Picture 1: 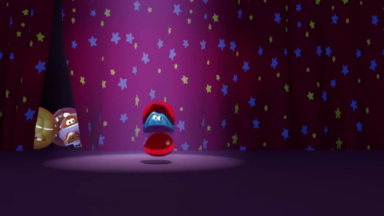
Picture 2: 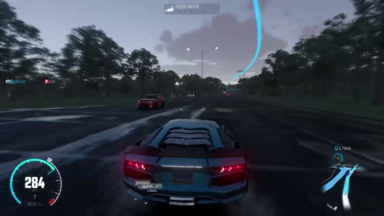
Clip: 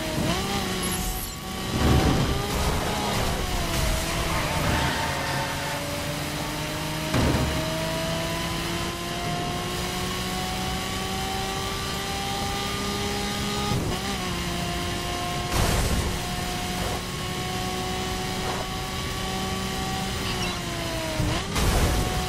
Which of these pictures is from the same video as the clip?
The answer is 2